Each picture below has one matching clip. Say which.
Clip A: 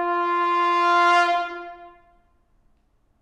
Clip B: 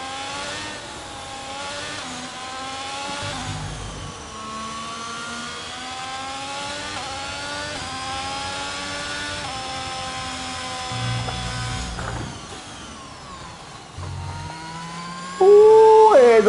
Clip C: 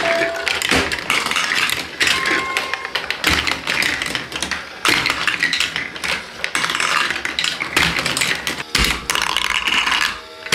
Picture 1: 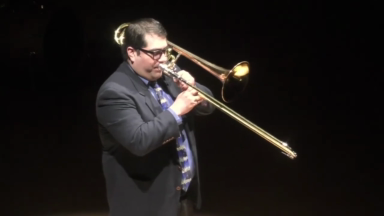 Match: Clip A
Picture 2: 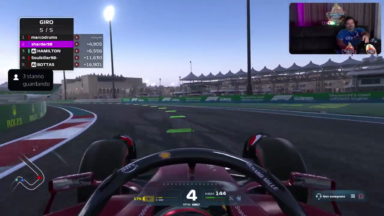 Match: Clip B